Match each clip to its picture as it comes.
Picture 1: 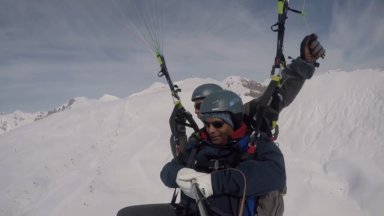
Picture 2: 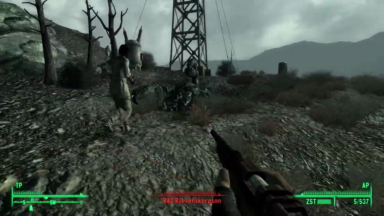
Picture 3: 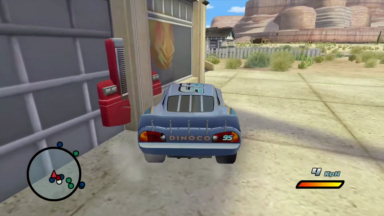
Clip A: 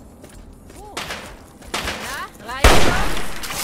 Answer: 2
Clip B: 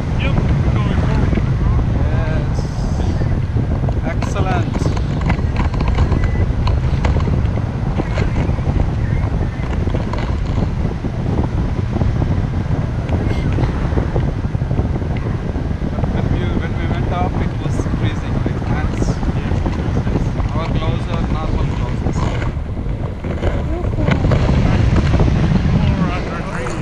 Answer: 1